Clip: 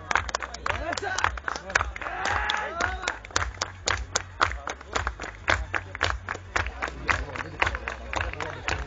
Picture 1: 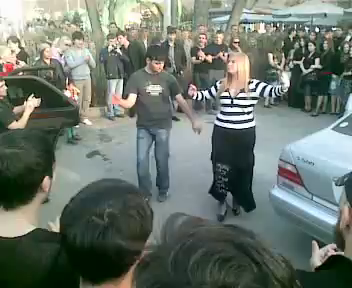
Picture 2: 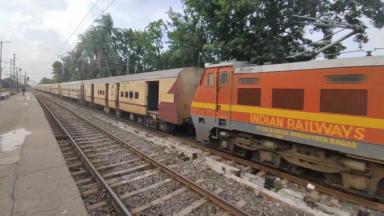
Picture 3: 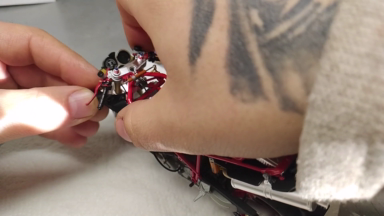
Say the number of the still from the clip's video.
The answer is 1